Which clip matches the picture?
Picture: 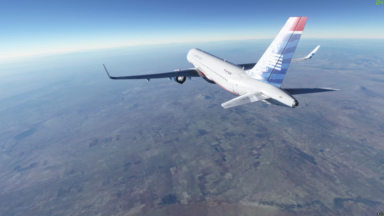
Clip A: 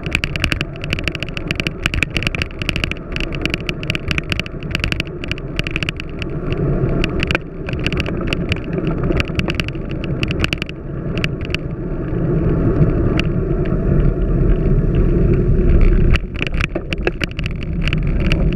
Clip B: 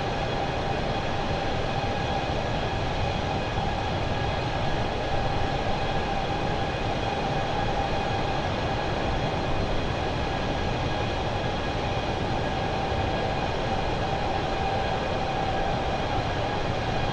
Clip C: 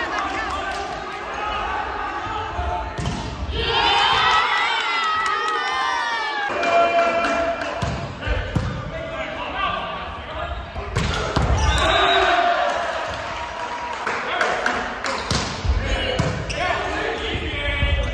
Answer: B